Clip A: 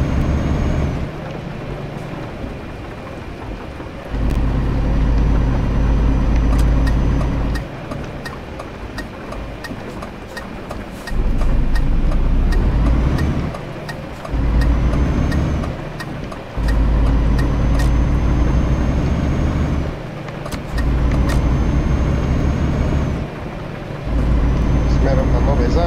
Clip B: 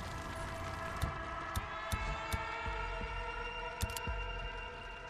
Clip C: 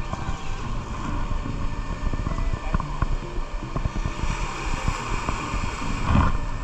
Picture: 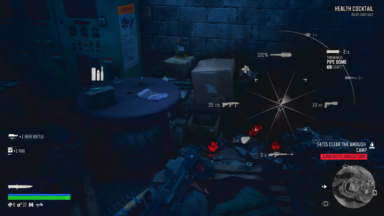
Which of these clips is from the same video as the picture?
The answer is B